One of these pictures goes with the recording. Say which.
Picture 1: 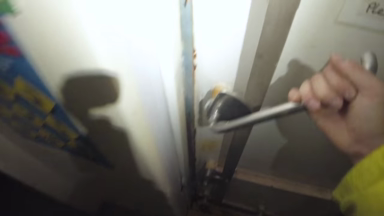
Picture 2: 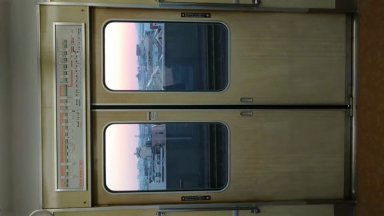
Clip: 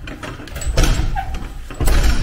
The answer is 1